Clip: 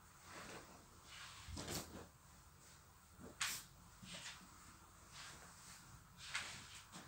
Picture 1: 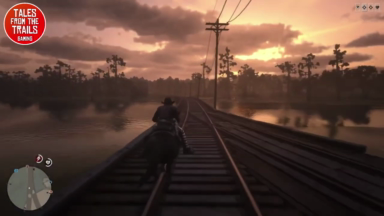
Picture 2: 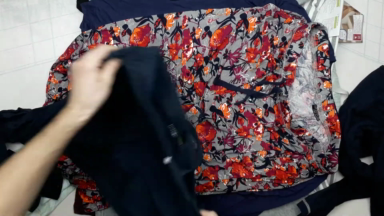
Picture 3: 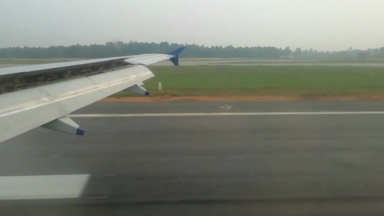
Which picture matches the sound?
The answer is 2